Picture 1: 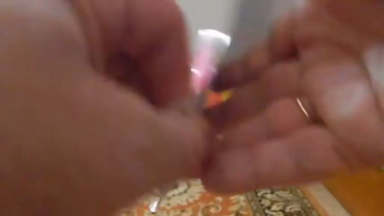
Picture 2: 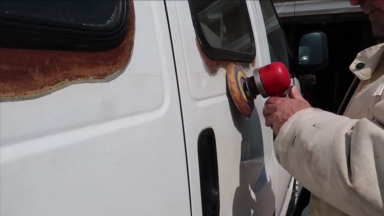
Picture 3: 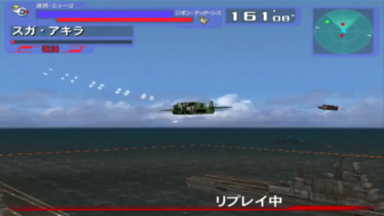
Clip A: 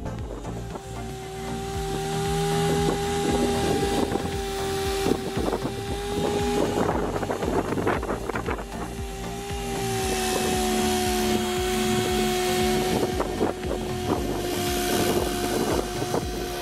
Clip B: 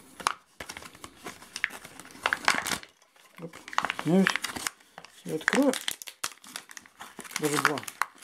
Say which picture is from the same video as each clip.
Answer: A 2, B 1